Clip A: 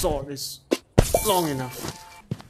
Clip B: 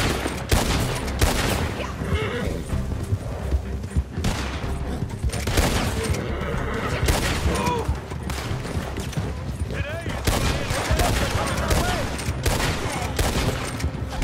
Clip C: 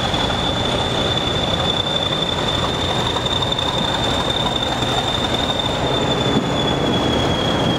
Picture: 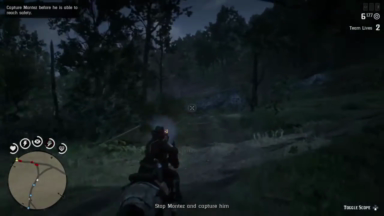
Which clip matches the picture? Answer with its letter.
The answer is B